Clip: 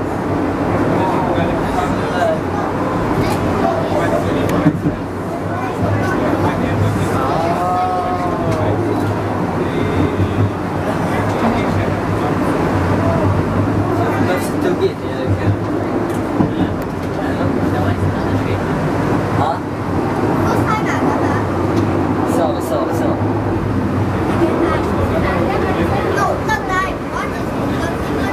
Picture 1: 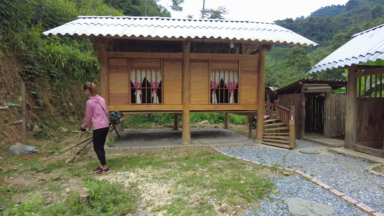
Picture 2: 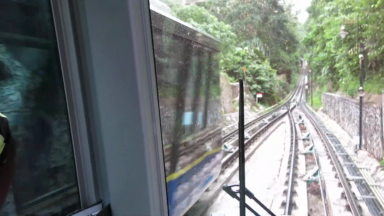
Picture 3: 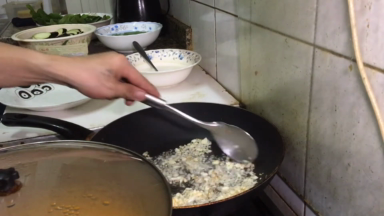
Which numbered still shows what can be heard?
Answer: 2